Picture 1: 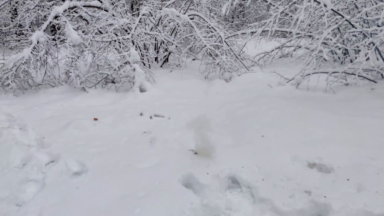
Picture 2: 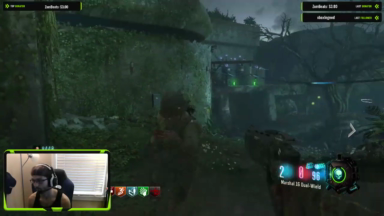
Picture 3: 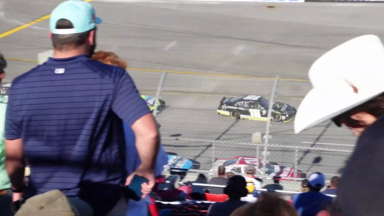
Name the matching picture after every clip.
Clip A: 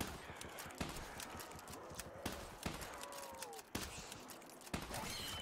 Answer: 2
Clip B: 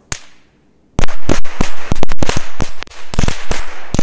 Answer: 1